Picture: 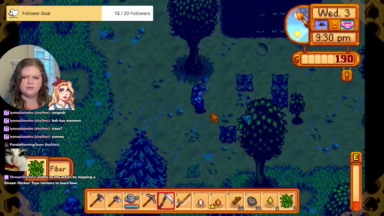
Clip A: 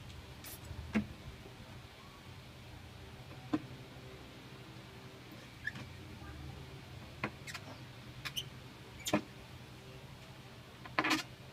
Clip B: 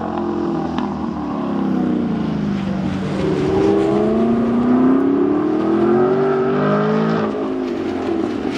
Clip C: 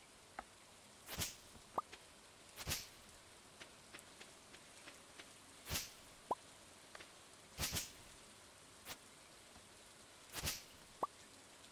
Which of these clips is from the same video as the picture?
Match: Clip C